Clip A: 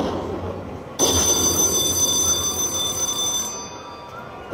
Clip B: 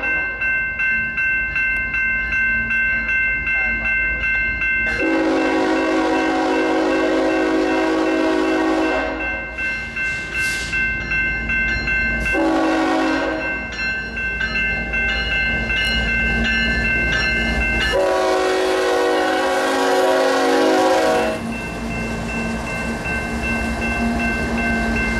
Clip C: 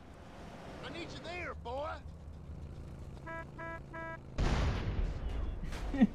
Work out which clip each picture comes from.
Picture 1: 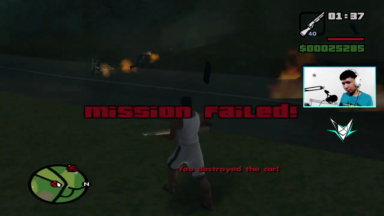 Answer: C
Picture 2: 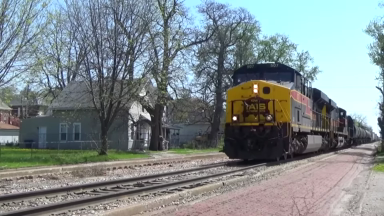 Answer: B